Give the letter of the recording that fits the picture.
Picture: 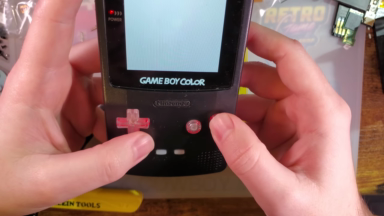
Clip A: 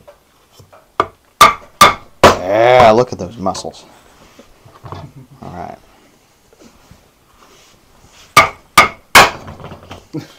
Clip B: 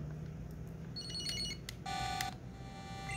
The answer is B